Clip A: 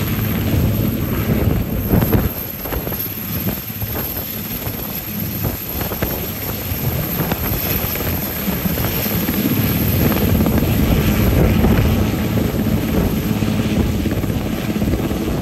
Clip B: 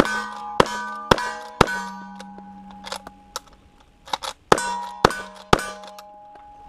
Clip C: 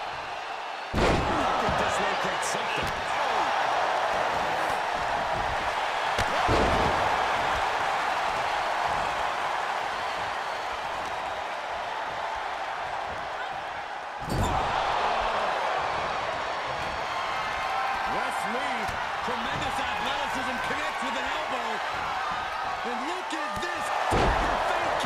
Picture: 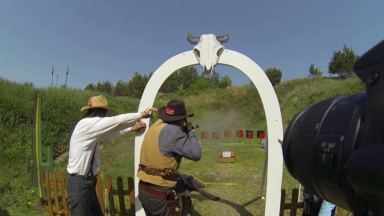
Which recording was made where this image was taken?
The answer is B